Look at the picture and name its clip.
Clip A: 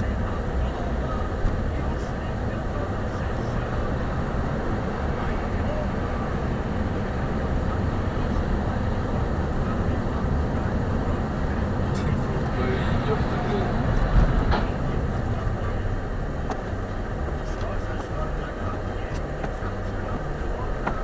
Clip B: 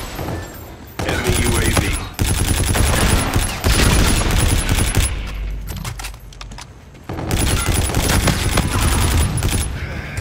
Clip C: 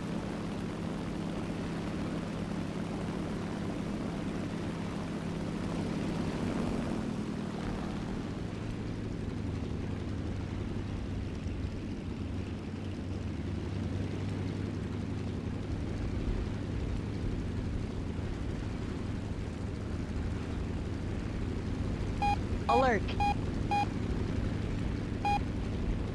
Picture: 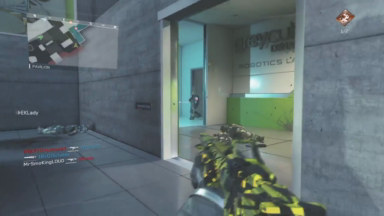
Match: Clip B